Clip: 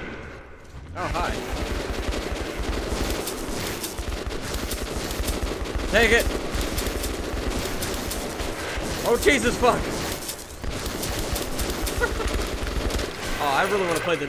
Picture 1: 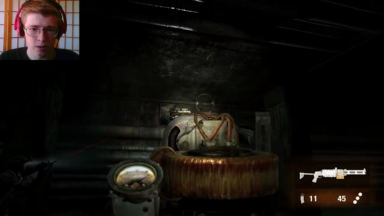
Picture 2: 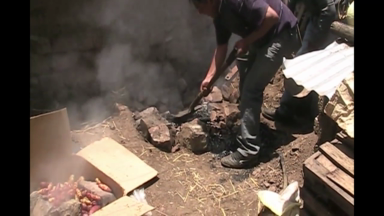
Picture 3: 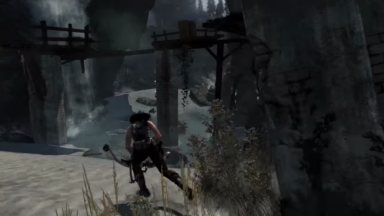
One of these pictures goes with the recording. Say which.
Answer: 1